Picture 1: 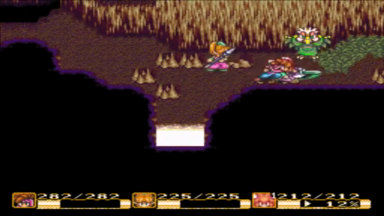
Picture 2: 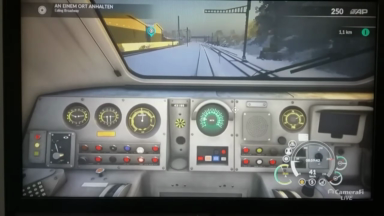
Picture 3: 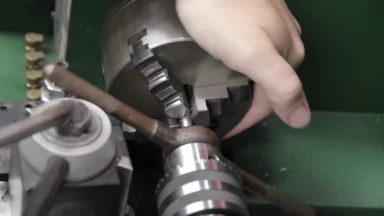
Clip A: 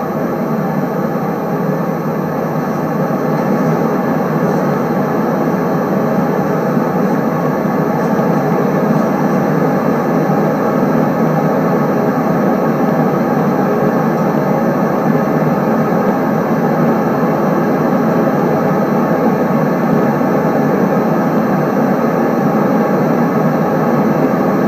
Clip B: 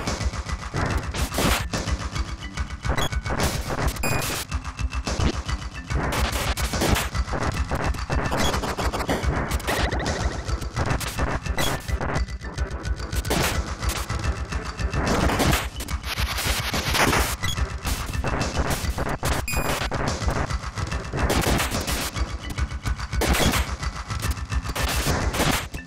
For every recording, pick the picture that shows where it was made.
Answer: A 2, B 1